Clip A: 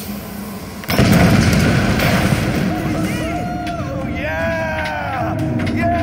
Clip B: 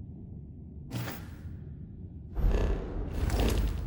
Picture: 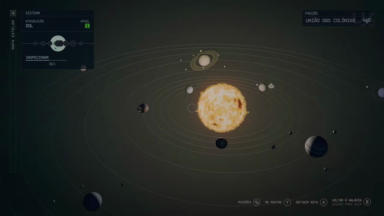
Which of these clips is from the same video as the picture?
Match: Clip B